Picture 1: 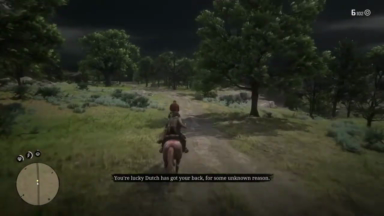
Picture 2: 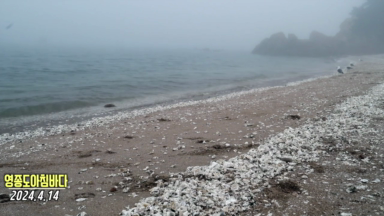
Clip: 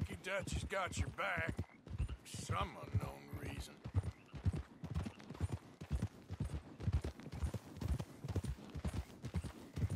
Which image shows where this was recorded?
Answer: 1